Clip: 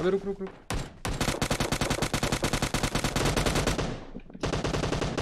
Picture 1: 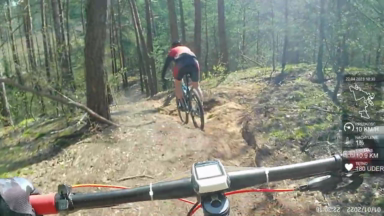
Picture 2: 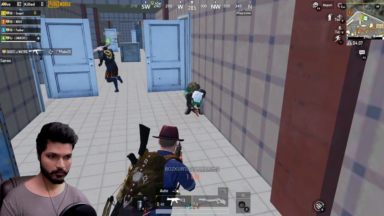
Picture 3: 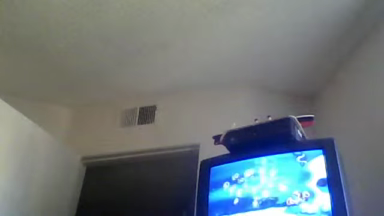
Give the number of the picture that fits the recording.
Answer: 2